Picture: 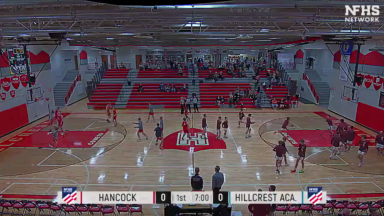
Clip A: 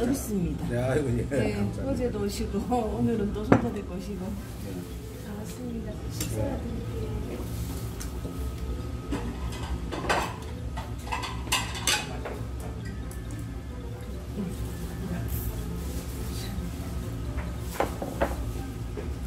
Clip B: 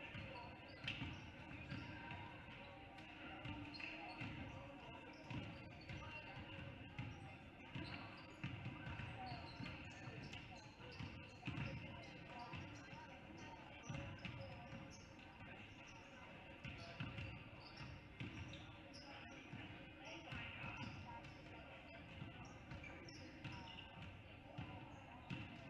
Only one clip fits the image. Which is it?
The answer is B